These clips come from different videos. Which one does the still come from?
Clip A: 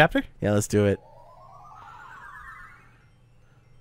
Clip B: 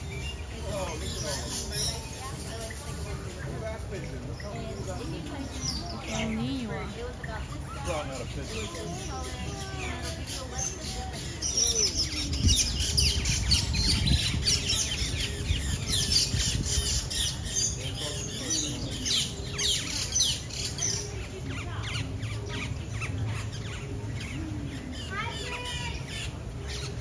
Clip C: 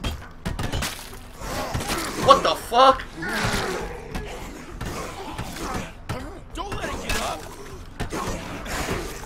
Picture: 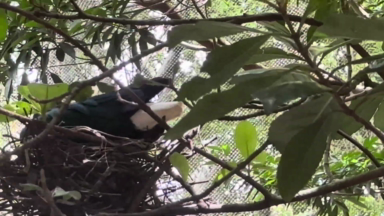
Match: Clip B